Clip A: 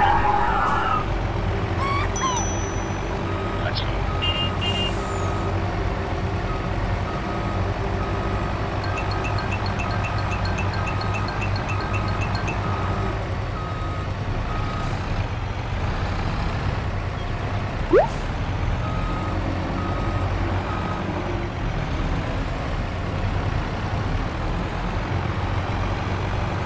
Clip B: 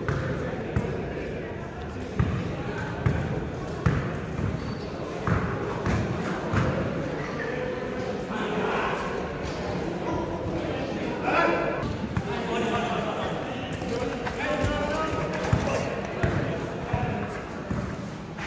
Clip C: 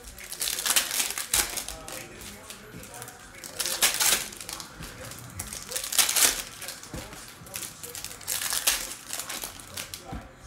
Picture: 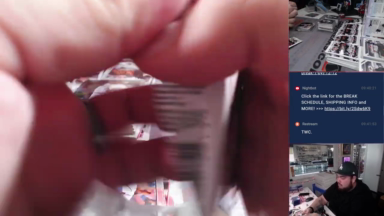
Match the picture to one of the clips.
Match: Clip C